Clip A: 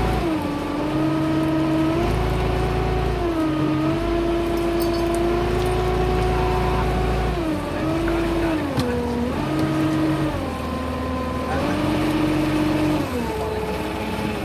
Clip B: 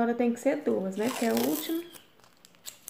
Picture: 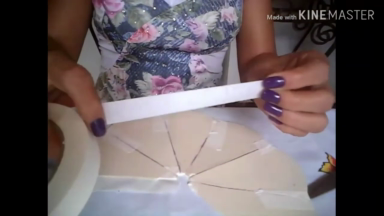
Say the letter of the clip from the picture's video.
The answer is B